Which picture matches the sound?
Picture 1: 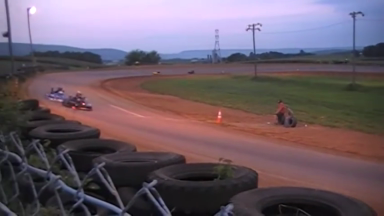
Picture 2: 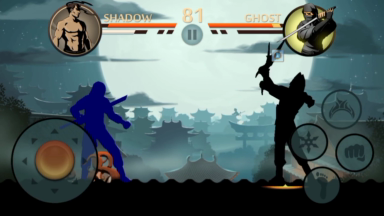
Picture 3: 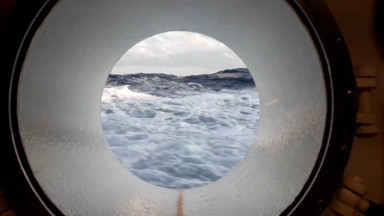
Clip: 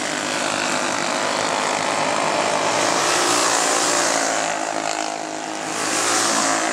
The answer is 1